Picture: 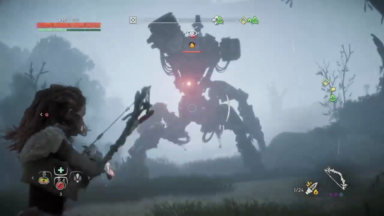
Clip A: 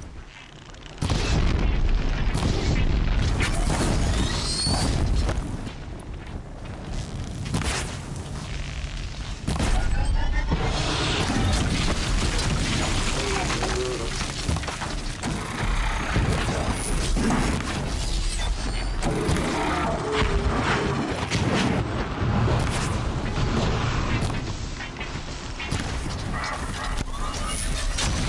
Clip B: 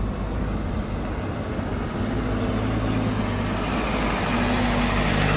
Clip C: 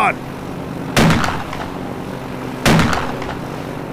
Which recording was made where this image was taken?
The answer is A